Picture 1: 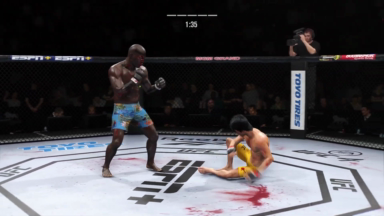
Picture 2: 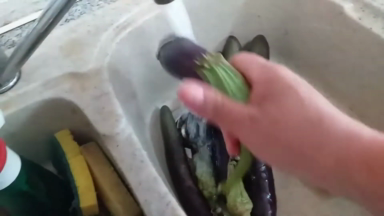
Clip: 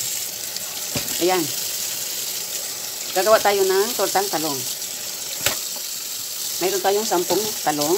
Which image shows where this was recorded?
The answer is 2